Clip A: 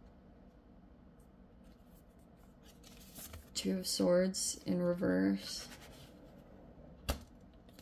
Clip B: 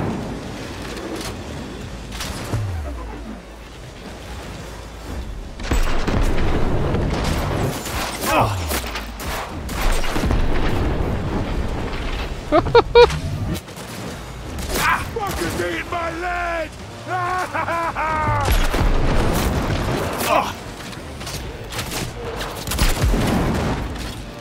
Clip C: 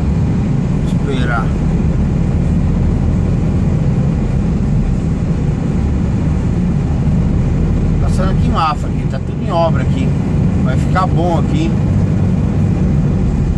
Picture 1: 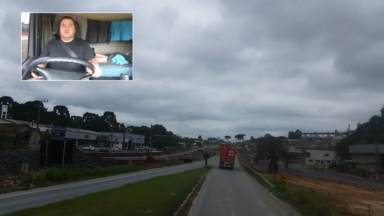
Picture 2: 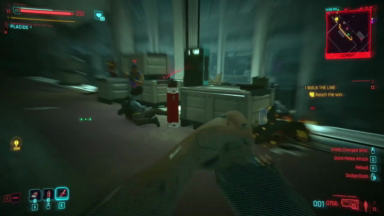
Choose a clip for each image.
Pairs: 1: C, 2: B